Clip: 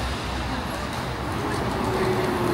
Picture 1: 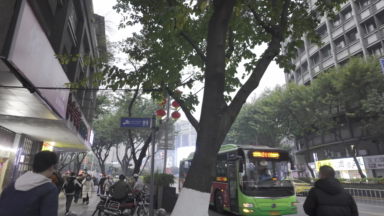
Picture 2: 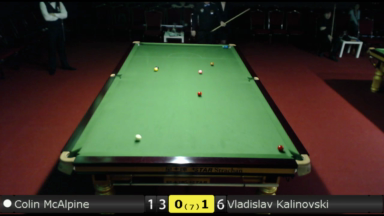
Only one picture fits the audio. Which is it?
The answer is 1